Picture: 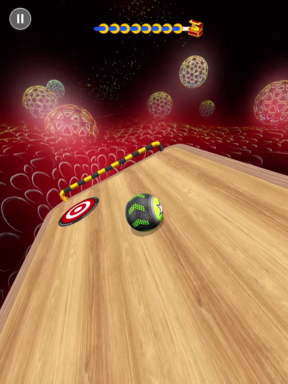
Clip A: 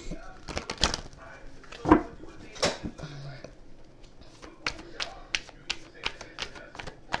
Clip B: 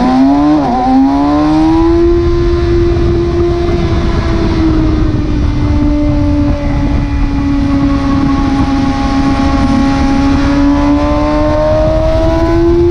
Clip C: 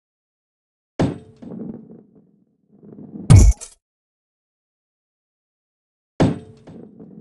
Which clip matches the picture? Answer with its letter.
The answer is C